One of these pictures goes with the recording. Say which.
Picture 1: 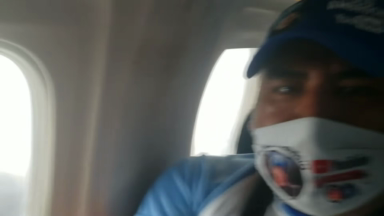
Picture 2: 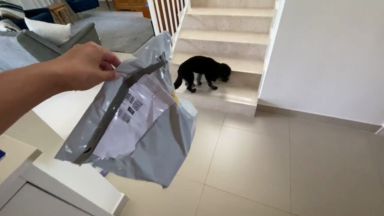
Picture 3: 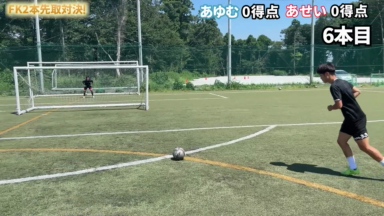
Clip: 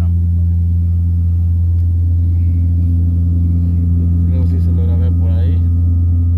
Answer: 1